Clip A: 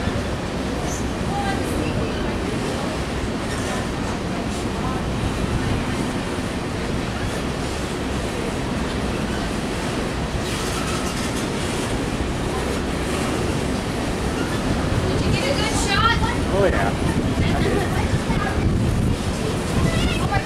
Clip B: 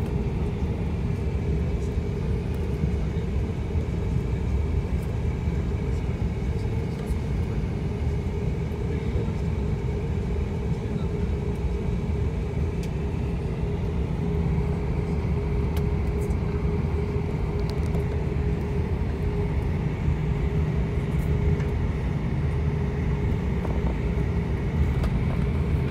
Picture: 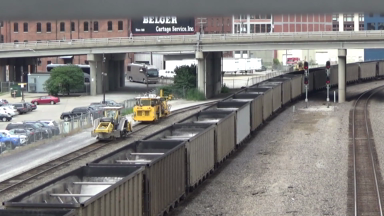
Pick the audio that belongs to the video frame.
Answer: A